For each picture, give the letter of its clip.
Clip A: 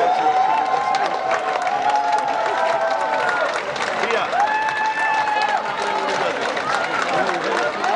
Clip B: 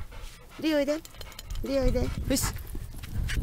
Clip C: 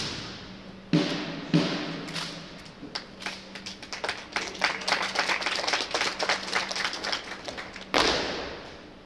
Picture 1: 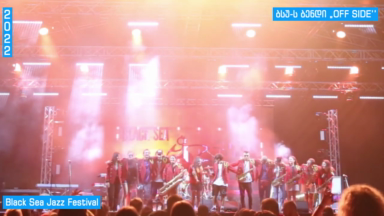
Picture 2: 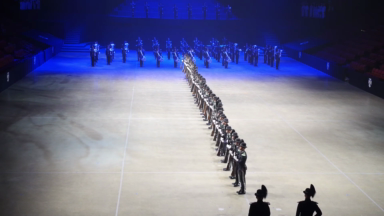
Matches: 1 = A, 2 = C